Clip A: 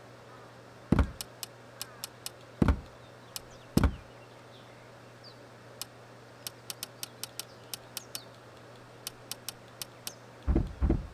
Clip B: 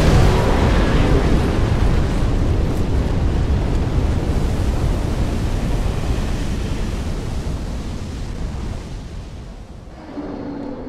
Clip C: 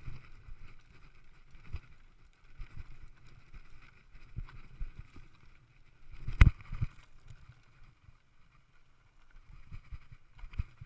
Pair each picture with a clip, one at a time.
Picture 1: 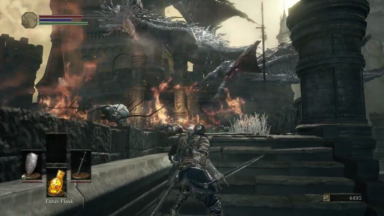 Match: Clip B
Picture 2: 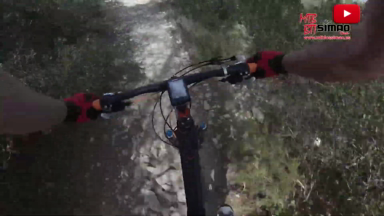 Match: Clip C